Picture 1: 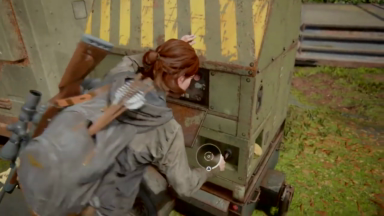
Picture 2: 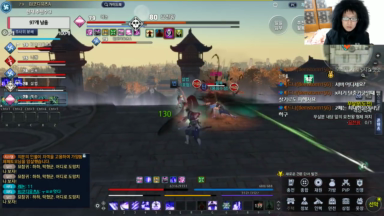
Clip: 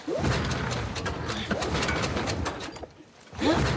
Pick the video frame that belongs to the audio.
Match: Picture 1